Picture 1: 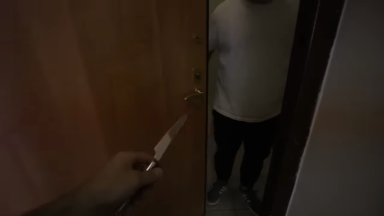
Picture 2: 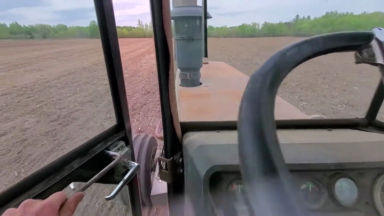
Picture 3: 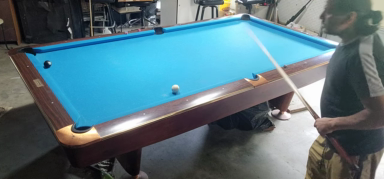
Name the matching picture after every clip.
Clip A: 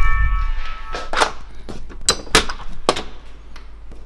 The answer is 1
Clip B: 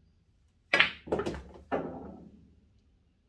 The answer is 3